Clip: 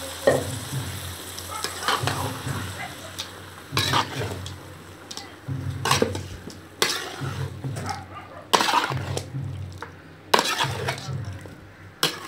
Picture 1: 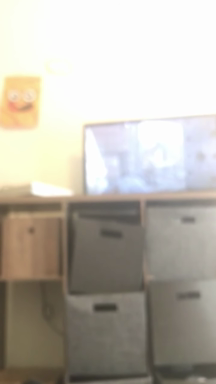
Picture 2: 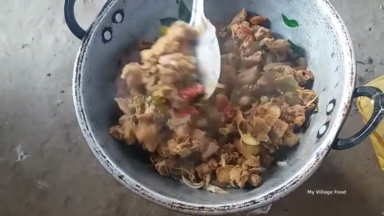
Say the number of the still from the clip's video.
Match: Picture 2